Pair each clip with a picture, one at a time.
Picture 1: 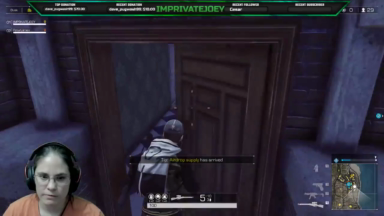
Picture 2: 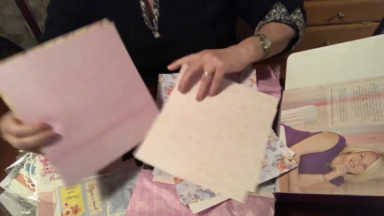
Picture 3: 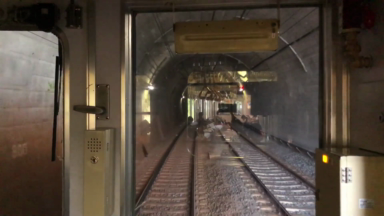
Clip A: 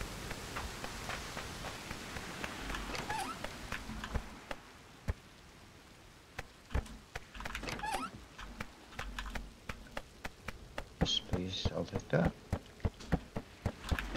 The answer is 1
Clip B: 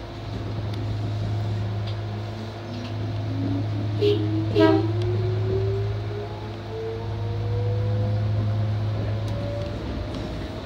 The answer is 3